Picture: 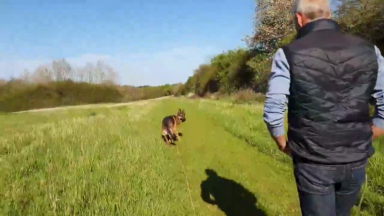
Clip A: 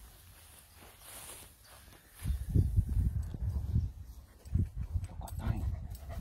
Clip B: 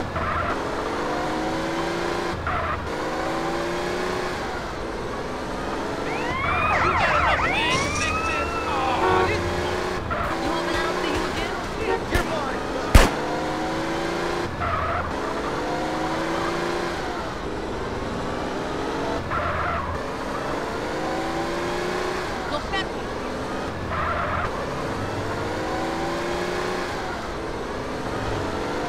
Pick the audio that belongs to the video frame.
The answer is A